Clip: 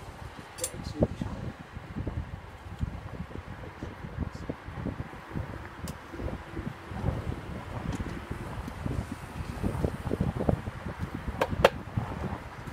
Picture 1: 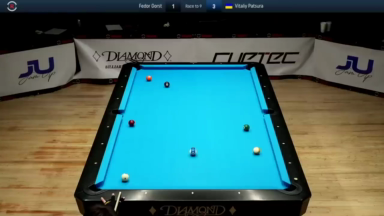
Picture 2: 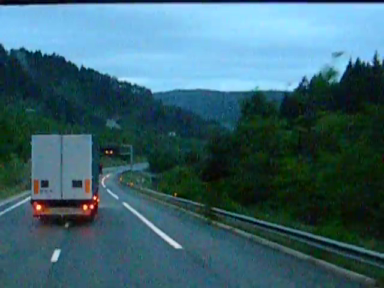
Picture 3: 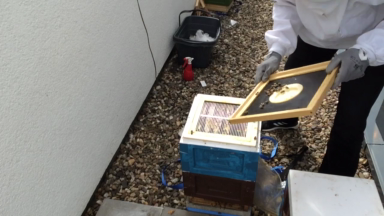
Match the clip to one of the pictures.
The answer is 3